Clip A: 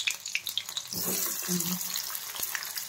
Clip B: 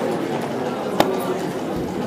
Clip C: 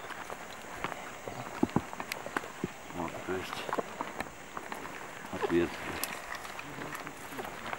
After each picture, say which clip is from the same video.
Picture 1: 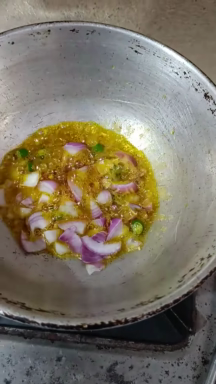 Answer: A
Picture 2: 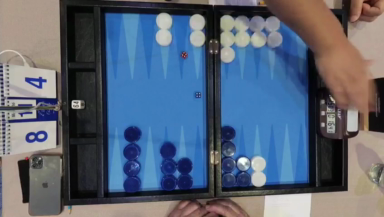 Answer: B